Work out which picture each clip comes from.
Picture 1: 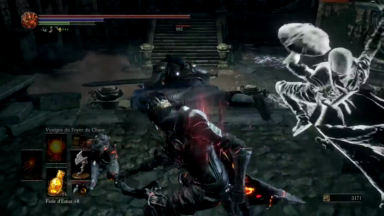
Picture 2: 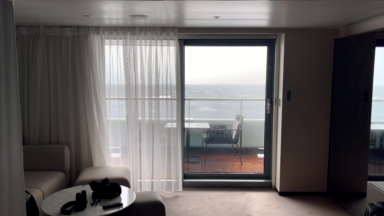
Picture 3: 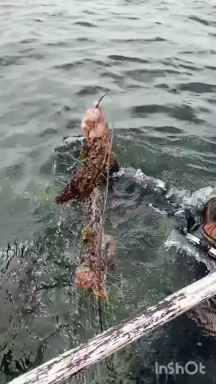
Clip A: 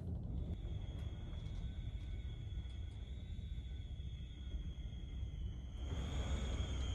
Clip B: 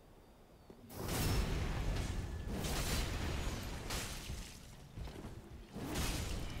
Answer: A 2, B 1